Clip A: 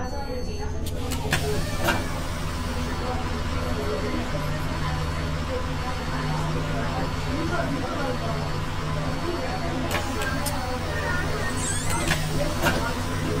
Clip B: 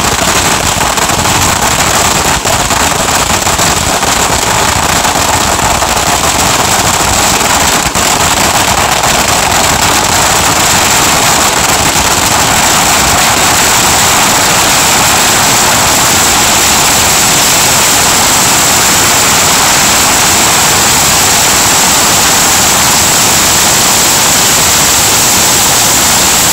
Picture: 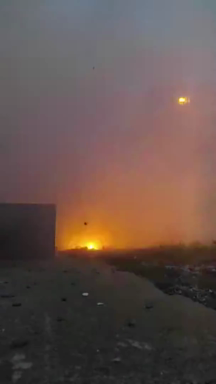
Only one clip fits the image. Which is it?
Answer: B